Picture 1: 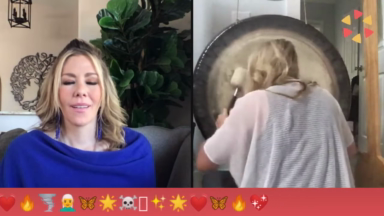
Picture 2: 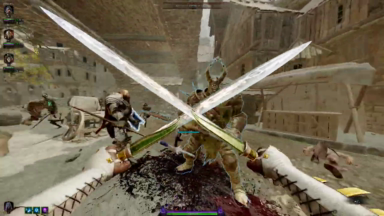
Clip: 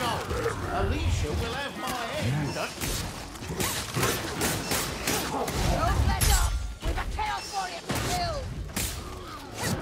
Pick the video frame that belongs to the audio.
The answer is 2